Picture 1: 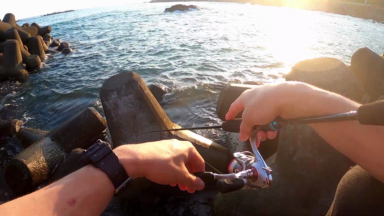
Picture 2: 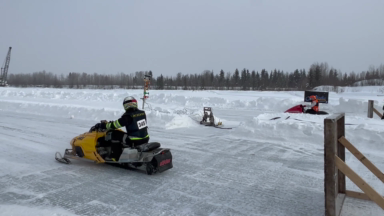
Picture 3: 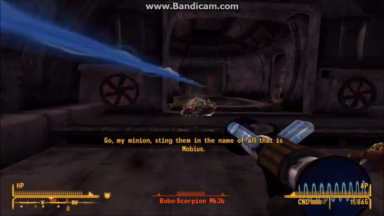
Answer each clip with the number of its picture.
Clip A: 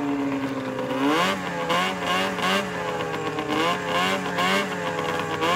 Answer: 2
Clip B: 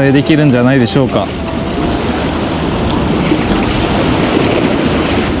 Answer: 1